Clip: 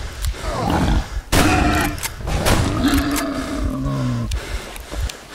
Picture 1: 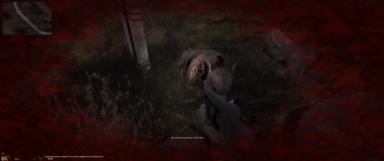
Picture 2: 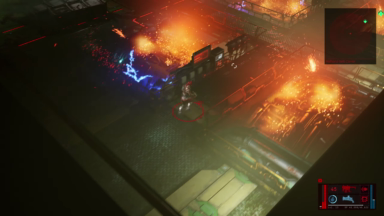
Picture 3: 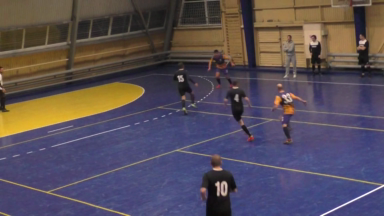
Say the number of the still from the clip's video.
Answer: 1